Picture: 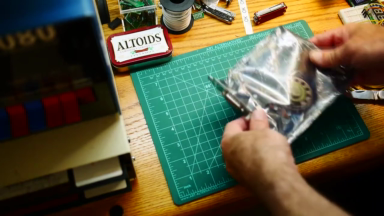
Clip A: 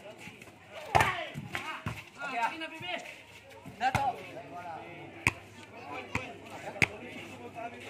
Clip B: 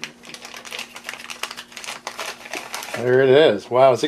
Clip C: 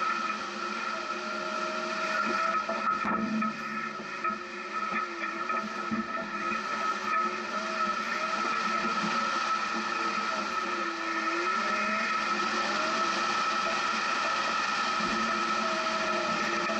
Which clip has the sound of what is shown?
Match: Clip B